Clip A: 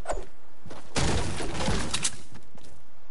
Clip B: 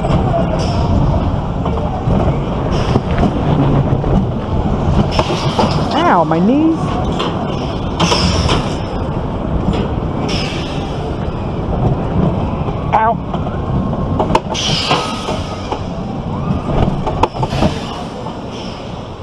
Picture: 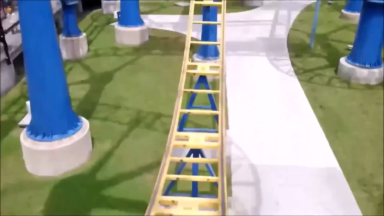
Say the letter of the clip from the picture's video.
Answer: B